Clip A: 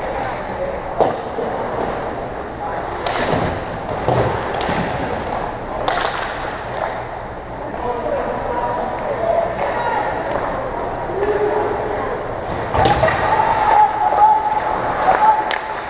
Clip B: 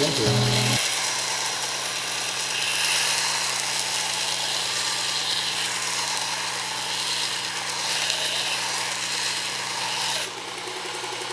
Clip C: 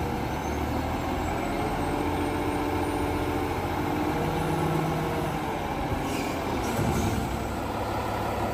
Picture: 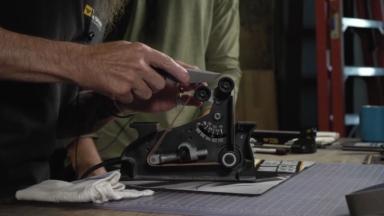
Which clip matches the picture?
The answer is B